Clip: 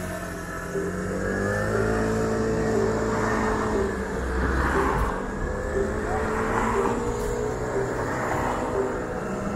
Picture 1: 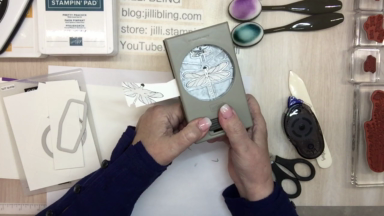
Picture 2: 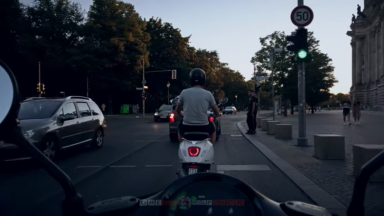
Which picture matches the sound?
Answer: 2